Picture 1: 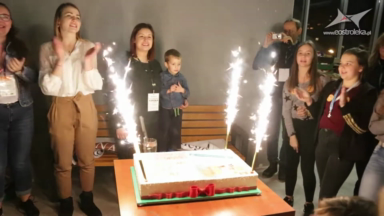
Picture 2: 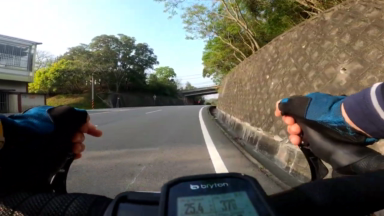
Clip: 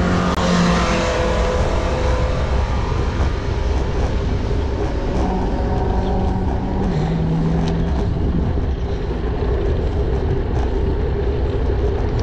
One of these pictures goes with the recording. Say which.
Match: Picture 2